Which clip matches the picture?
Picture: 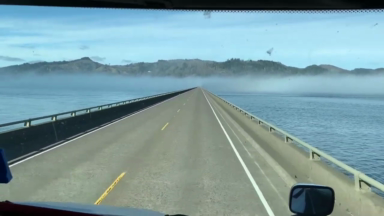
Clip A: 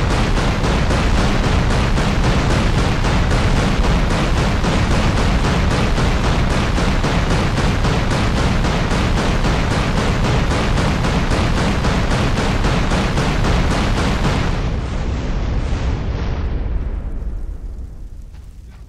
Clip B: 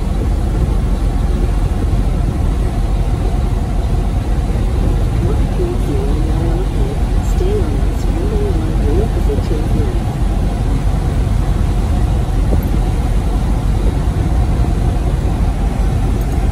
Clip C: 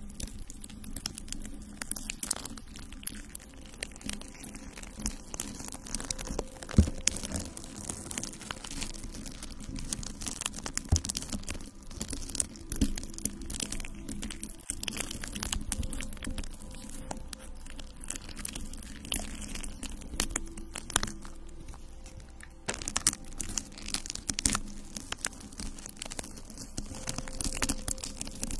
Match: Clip B